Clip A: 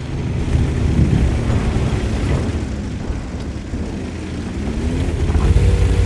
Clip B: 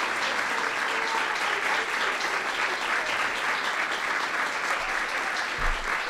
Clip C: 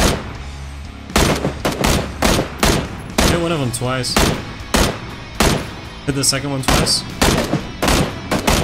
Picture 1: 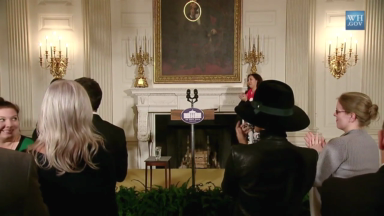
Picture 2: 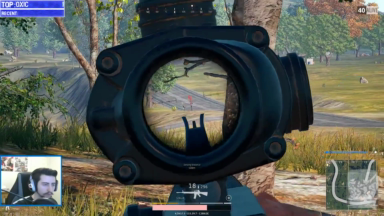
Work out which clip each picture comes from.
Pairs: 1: B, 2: C